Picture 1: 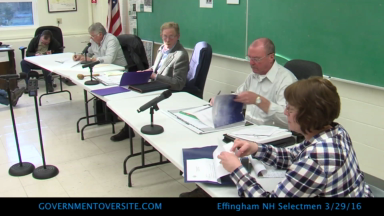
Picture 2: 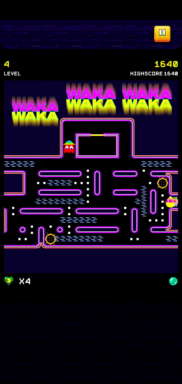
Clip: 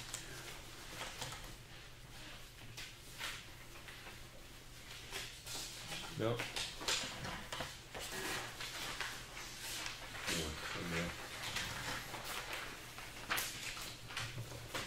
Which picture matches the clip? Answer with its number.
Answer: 1